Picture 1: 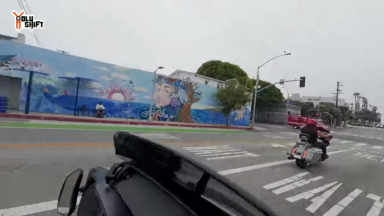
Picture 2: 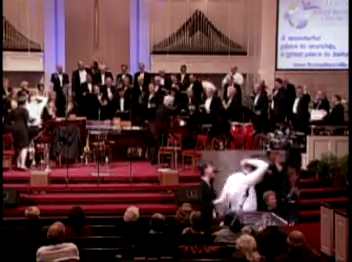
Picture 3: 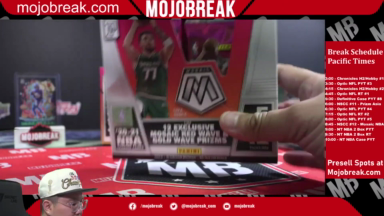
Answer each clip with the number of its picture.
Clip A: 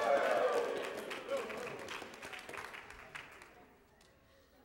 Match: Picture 2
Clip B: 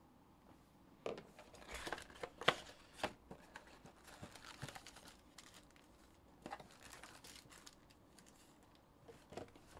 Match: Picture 3